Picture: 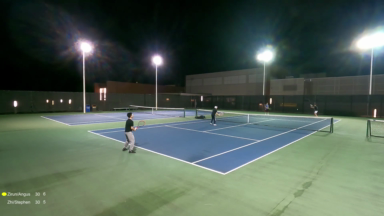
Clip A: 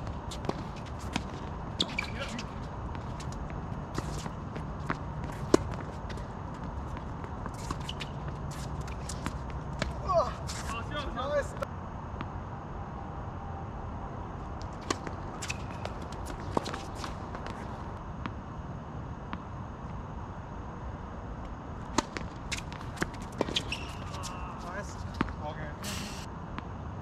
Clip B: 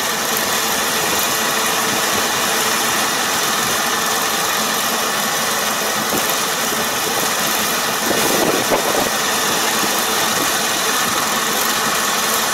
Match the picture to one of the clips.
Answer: A